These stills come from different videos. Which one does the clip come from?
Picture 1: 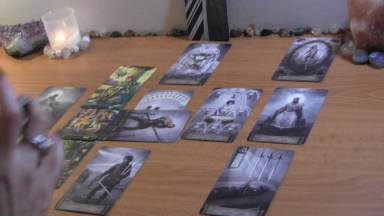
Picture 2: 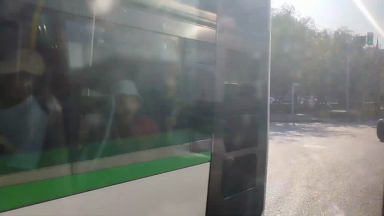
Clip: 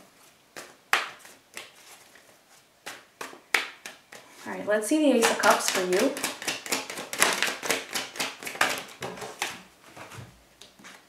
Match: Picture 1